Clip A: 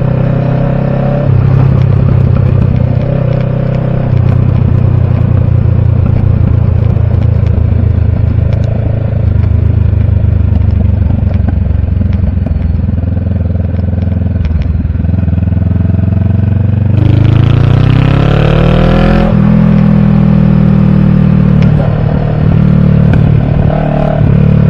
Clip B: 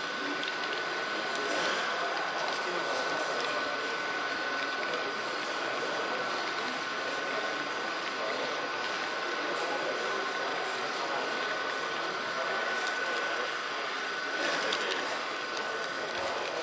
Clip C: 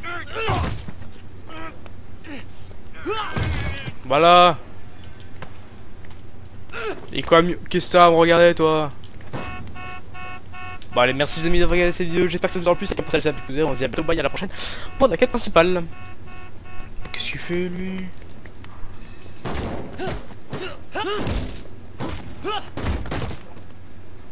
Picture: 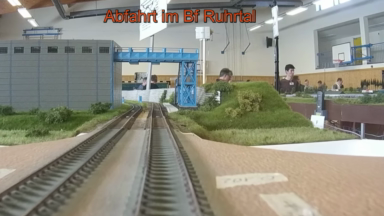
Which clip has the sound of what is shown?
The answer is B